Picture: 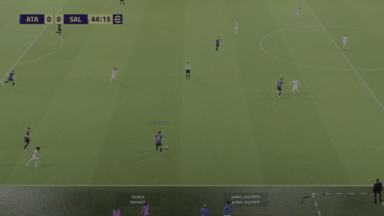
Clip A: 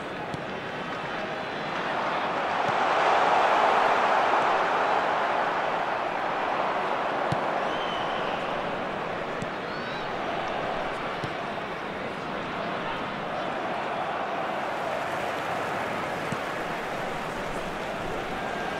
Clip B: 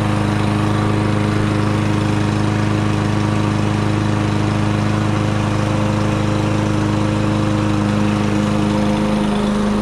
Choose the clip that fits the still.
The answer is A